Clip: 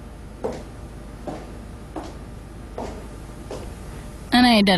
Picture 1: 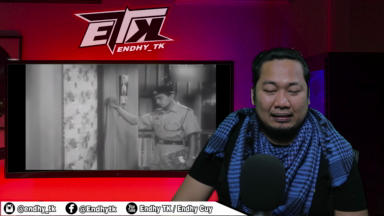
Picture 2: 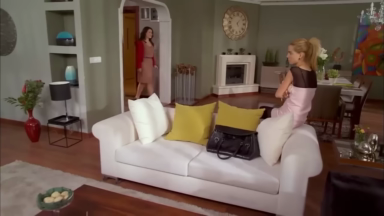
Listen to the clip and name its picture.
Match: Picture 2